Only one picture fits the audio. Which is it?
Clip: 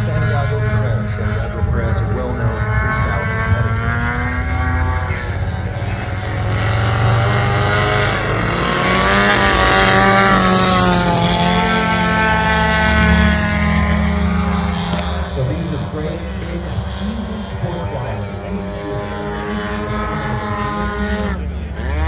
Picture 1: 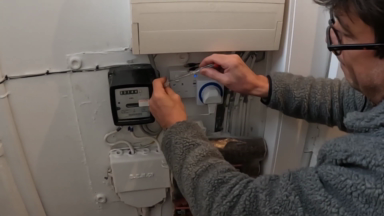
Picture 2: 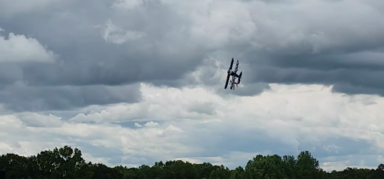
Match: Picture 2